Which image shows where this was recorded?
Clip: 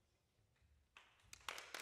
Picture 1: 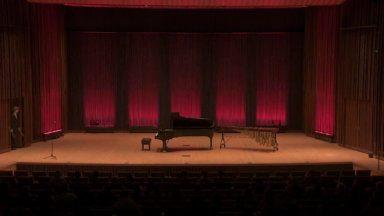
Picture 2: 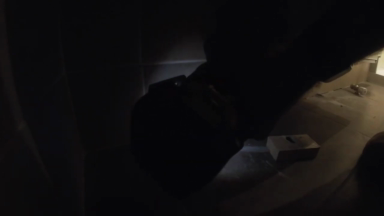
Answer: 1